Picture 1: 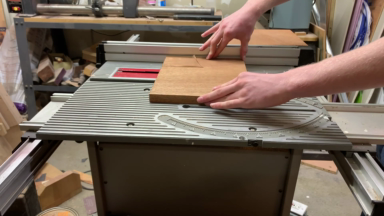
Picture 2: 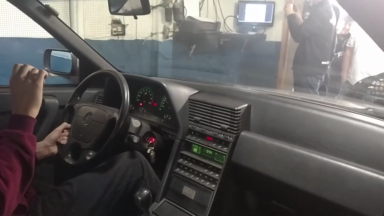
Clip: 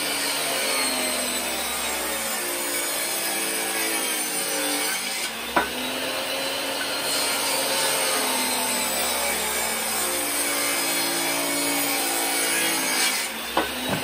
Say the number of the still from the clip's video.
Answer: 1